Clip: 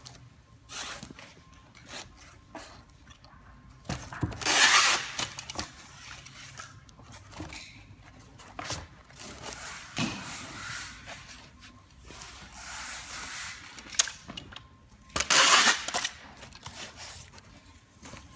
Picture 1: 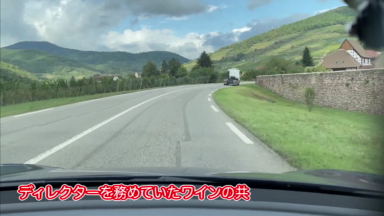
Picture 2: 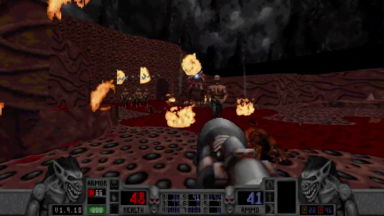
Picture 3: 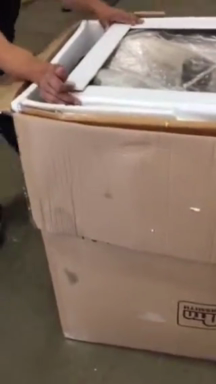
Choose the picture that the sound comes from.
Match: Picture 3